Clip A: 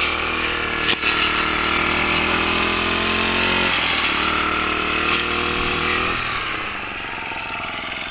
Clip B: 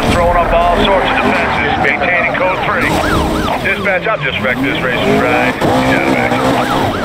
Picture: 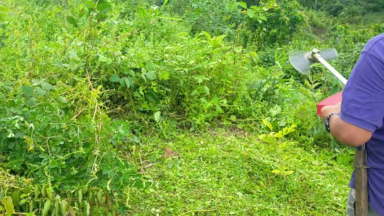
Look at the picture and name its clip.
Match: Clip A